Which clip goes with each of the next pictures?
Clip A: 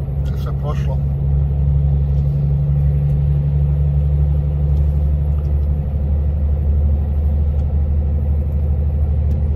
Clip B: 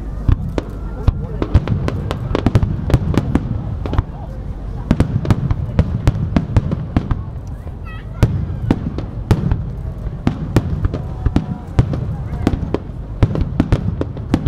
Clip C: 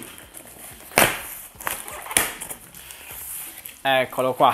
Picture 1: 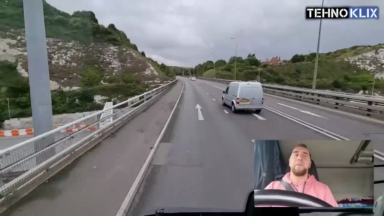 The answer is A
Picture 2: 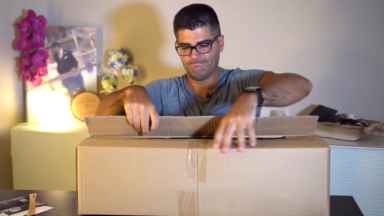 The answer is C